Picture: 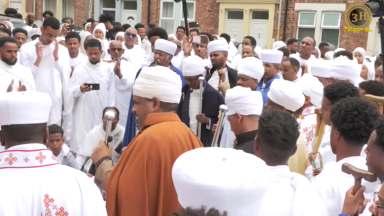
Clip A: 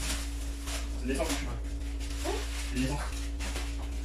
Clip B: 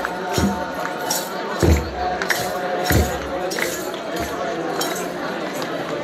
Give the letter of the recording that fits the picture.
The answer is B